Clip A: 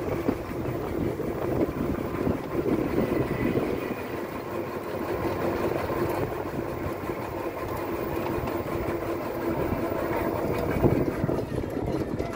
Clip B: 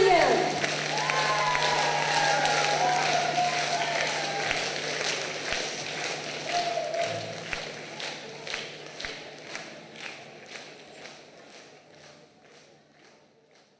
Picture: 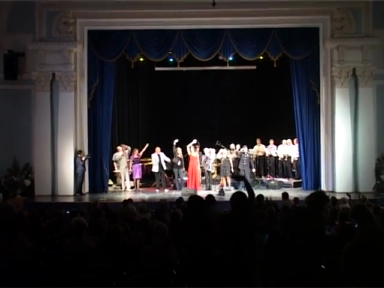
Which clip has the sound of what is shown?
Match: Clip B